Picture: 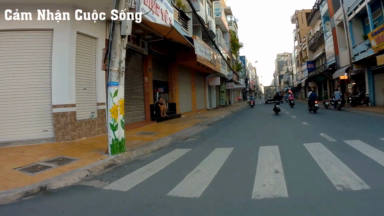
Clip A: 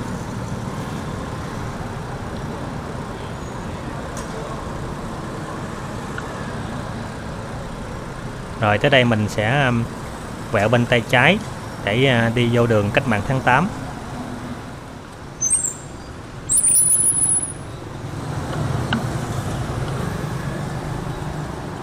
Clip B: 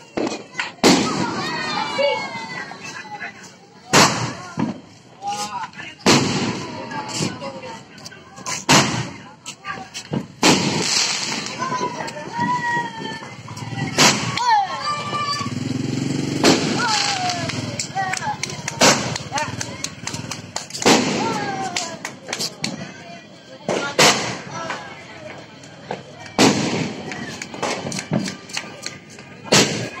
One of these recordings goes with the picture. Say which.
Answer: A